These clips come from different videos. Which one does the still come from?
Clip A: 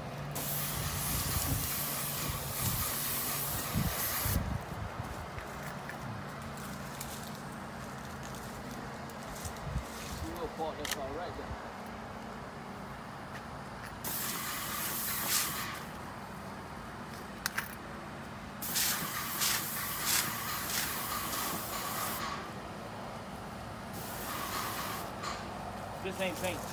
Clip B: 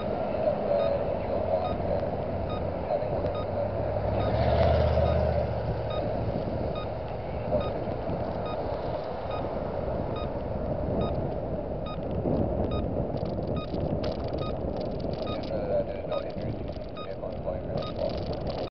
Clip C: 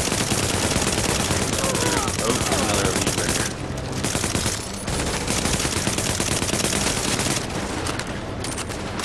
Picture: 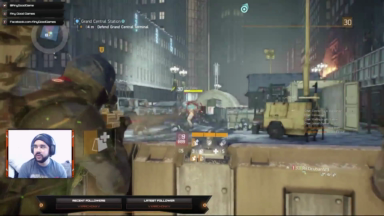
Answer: C